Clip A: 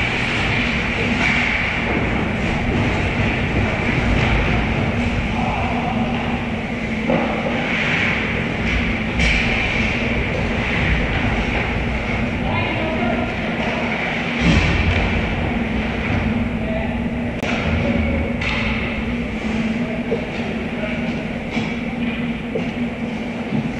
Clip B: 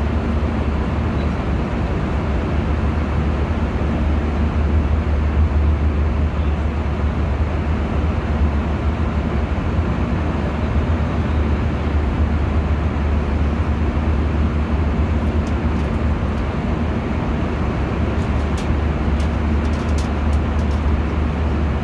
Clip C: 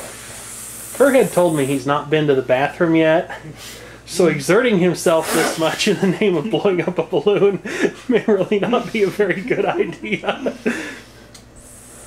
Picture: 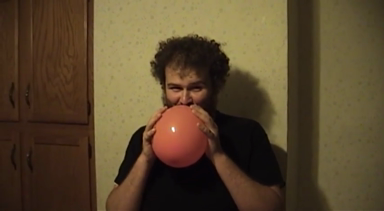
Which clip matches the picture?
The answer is C